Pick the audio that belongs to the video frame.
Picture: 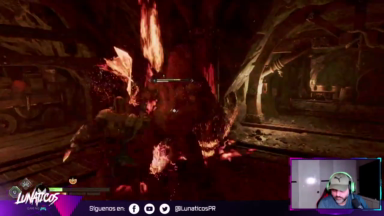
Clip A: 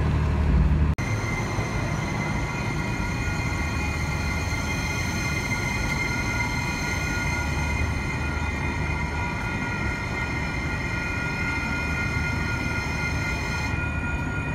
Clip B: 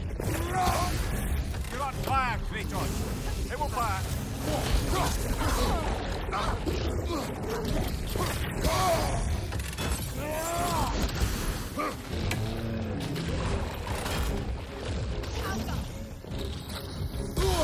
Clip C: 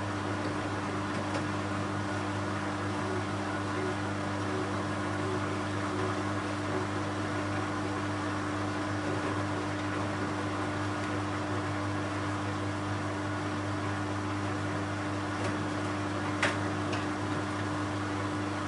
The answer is B